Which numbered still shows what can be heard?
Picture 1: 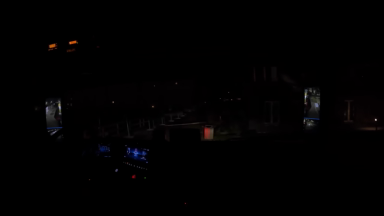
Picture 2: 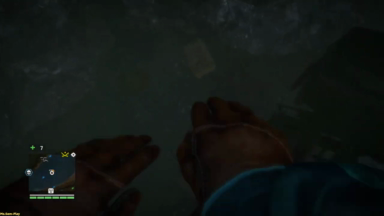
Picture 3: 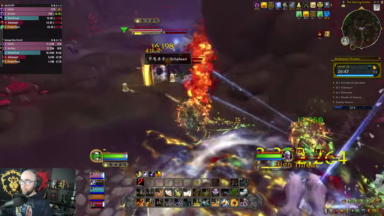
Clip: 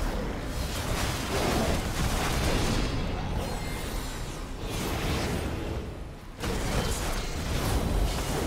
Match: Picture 3